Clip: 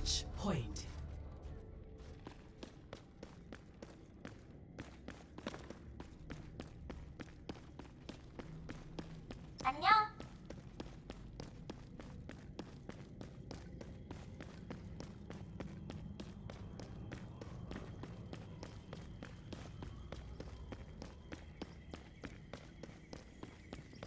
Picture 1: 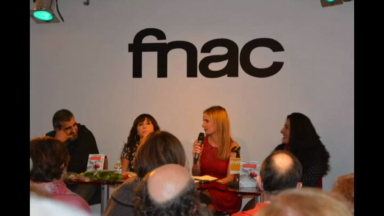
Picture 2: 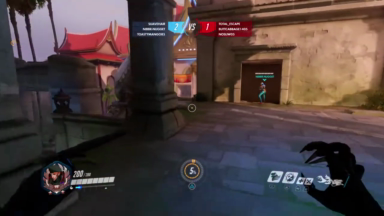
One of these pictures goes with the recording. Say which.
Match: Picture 2